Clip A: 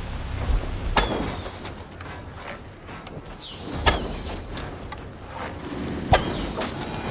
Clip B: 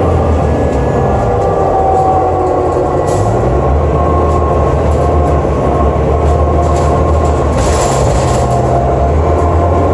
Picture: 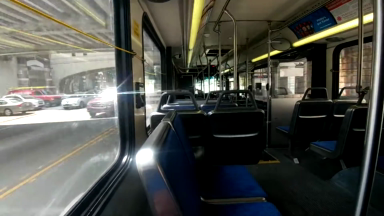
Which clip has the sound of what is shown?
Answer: B